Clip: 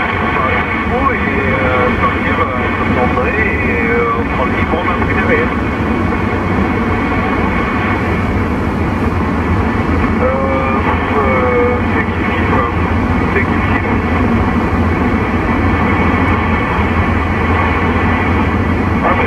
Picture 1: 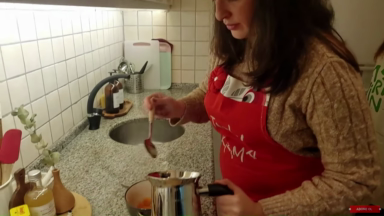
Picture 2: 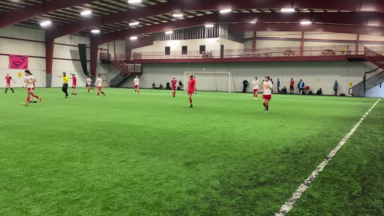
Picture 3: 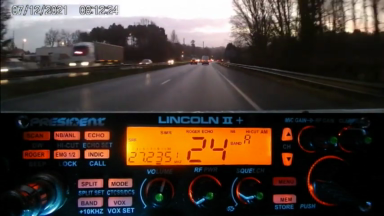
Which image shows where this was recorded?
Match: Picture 3